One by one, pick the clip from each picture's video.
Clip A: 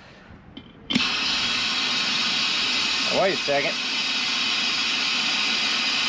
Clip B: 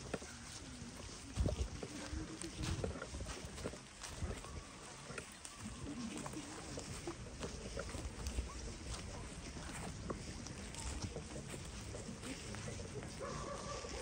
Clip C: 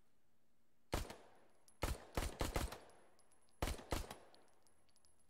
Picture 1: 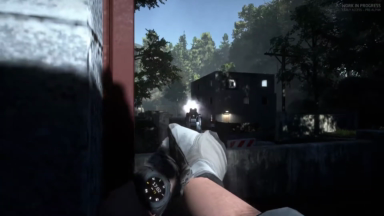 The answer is C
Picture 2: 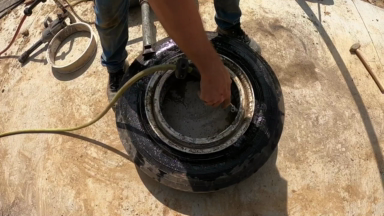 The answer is A